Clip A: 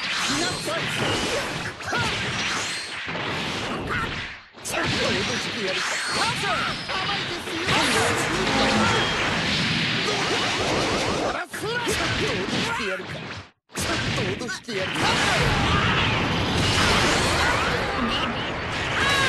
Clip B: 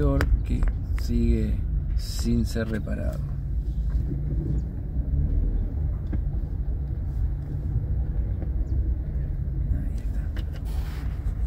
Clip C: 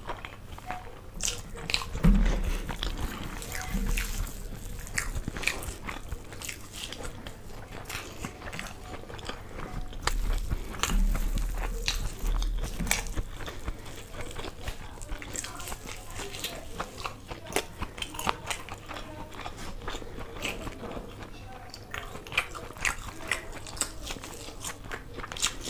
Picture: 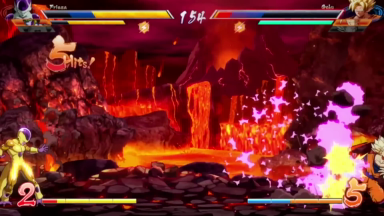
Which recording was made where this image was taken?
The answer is A